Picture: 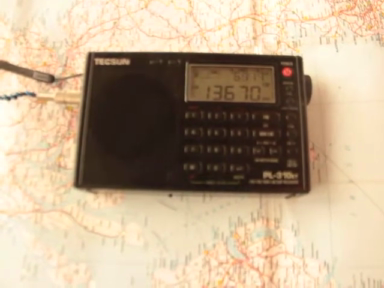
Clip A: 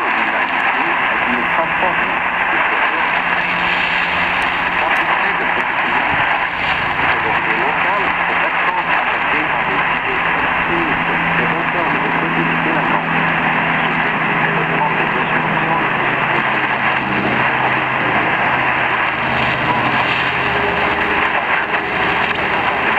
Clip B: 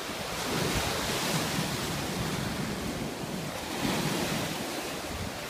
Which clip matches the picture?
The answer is A